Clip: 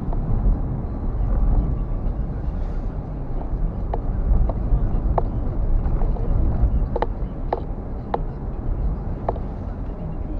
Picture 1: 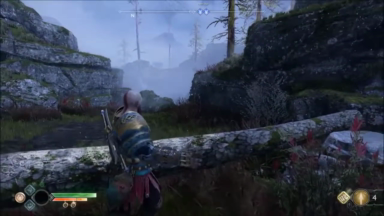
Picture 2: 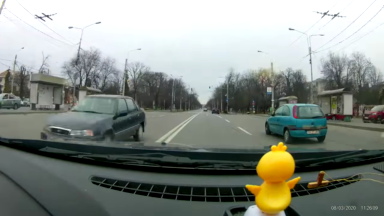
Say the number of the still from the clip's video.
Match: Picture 2